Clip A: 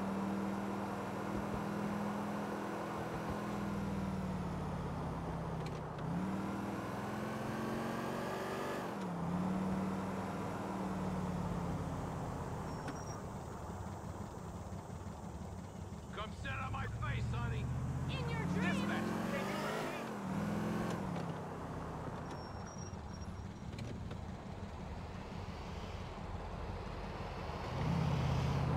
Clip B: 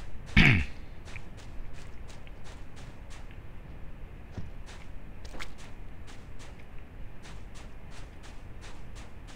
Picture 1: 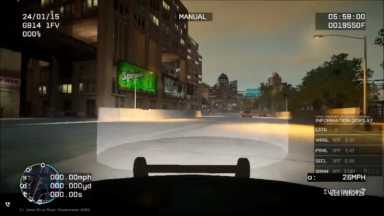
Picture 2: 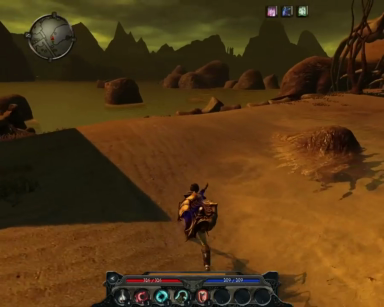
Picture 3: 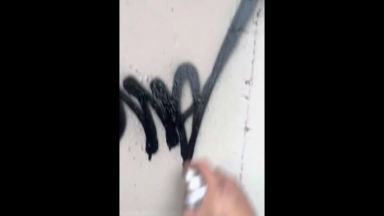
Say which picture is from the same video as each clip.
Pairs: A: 1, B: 2